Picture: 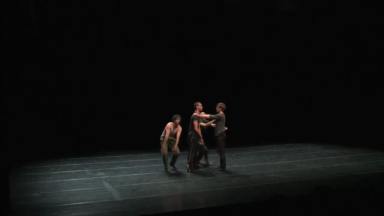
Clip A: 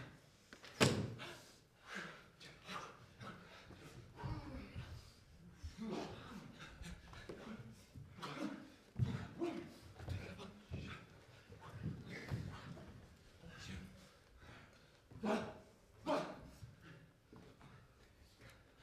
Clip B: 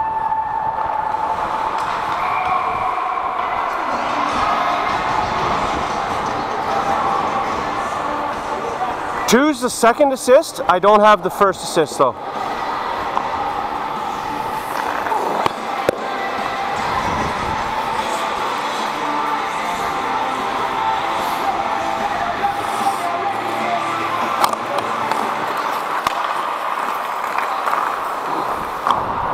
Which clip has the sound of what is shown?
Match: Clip A